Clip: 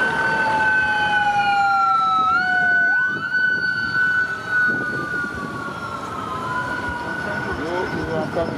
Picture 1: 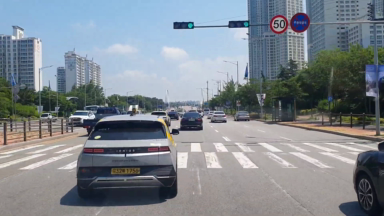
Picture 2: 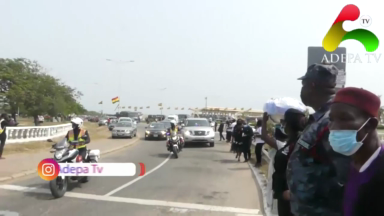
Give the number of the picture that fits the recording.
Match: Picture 2